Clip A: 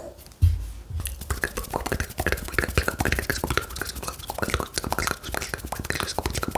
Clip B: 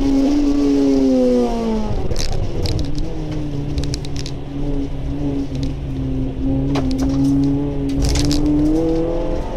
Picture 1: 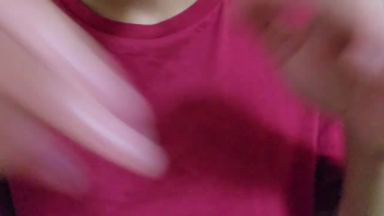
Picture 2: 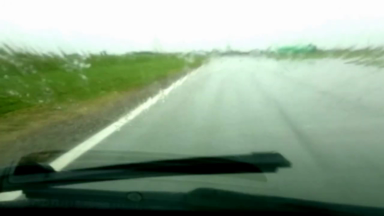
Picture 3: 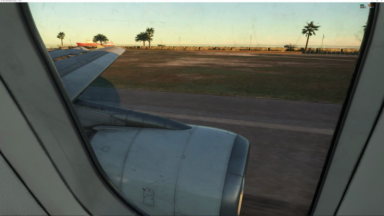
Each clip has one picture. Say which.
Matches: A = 1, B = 2